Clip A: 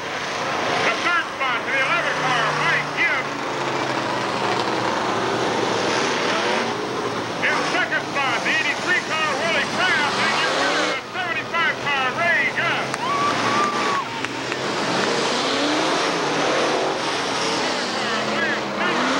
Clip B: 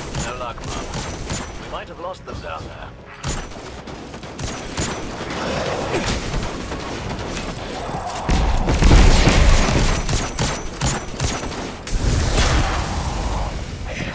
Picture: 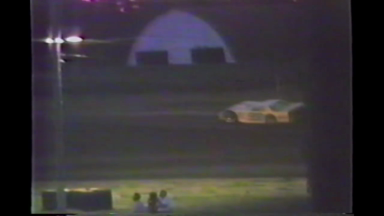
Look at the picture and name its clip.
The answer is A